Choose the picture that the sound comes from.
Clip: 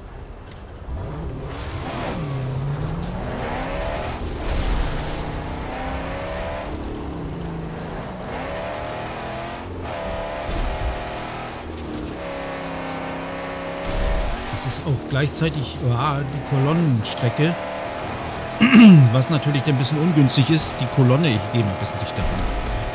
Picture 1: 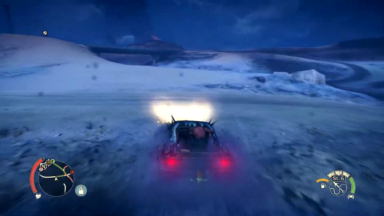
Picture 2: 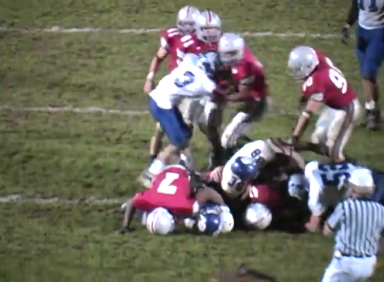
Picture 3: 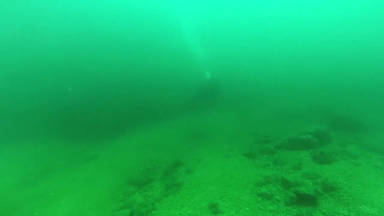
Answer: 1